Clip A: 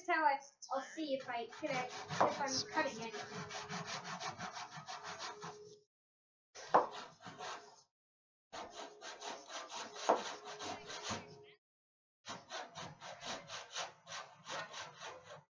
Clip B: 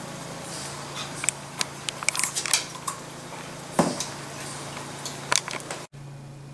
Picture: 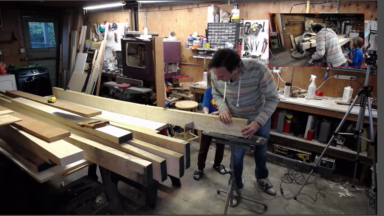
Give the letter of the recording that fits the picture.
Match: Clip A